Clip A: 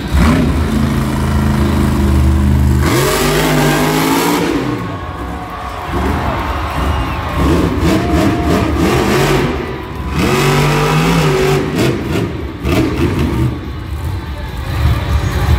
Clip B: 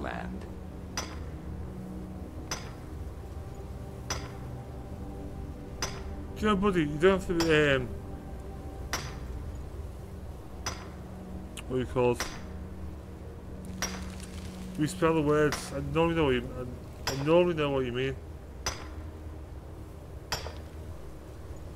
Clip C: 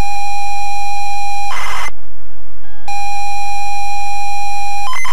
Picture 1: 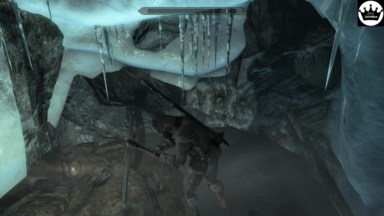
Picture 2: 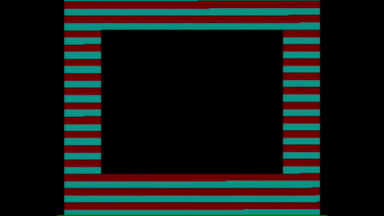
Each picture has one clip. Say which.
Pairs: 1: B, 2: C